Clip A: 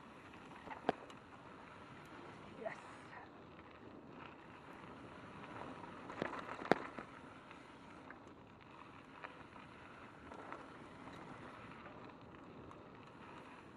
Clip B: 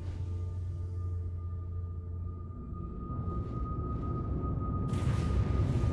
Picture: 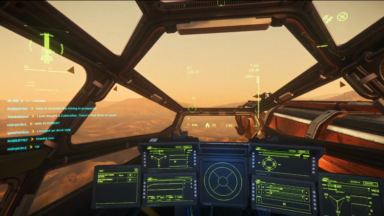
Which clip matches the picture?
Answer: B